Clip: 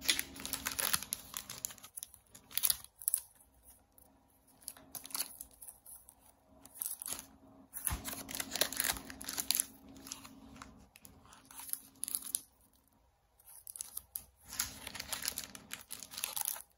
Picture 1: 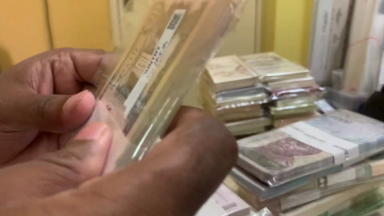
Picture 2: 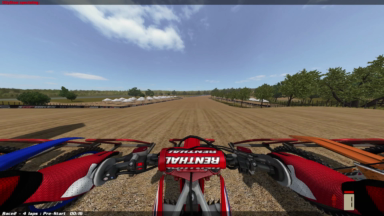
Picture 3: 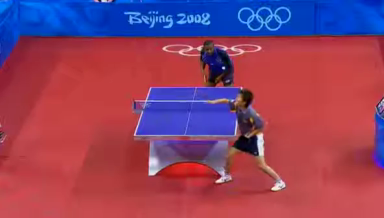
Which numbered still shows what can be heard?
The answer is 1